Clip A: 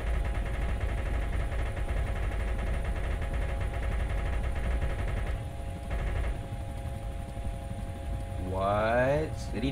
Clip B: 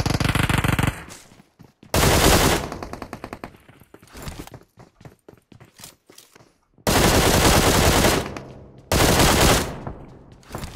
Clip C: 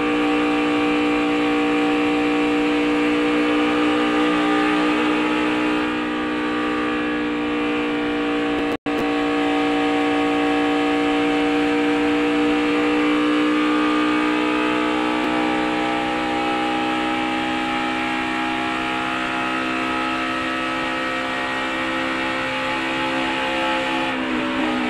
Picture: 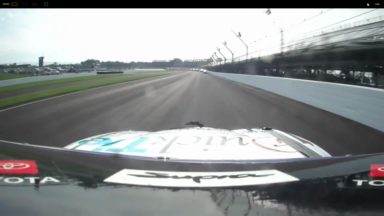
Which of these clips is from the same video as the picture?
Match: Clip C